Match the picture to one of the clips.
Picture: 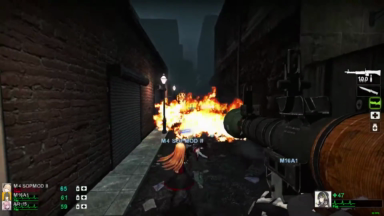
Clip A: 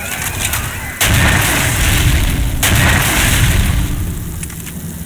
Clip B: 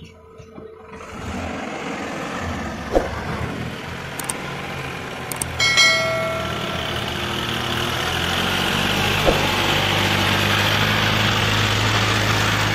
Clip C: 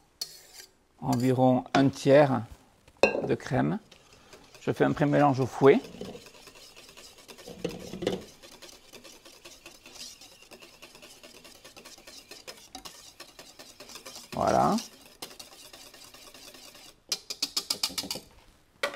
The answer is A